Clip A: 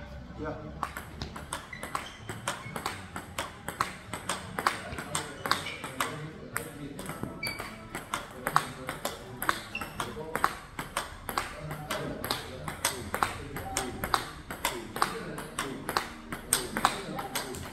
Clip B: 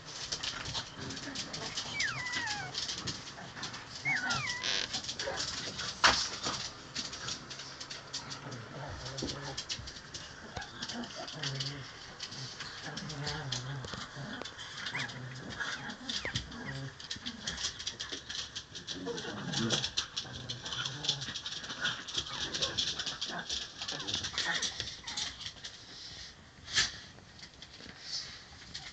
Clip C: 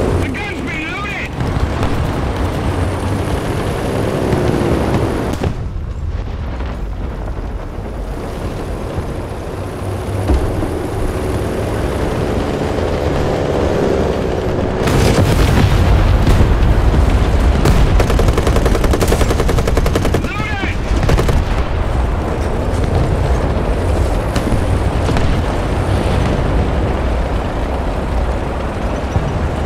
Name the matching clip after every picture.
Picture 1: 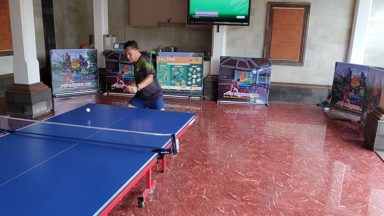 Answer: A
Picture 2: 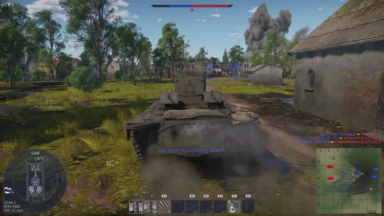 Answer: C